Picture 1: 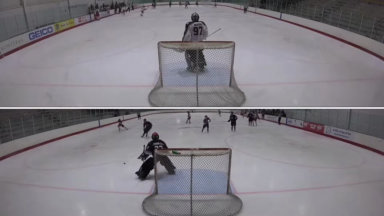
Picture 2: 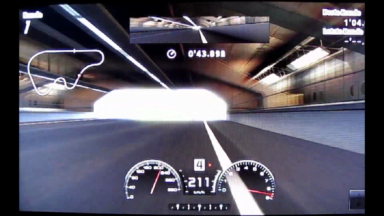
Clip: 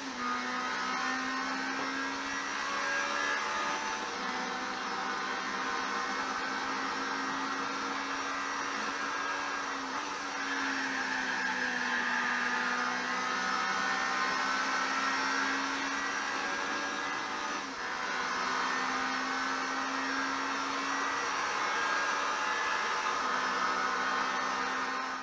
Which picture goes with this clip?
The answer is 2